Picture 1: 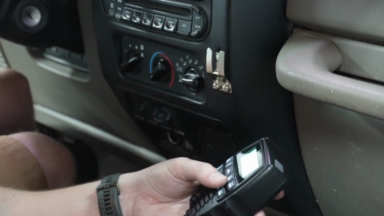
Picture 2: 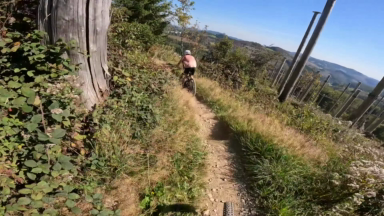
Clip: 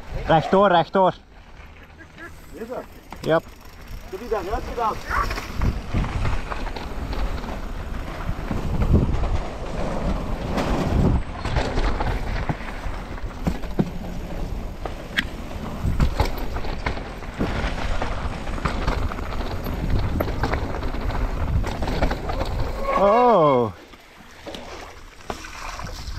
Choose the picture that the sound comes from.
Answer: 2